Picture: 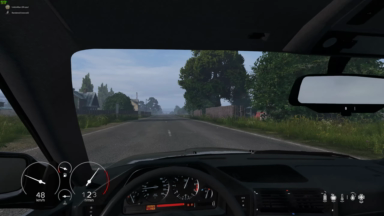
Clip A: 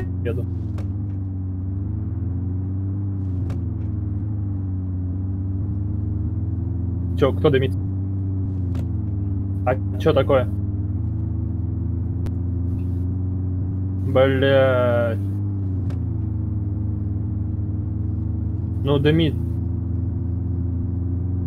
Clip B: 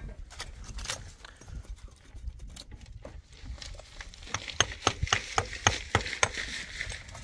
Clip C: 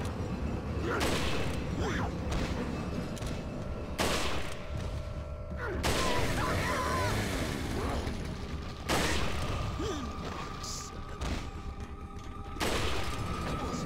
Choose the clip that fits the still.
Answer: A